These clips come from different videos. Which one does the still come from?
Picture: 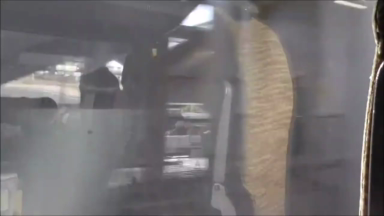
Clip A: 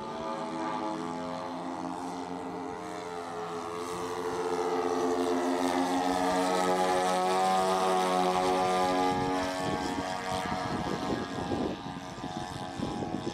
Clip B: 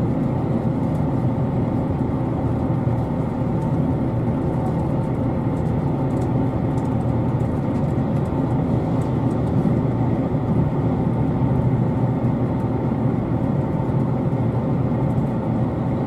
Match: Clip B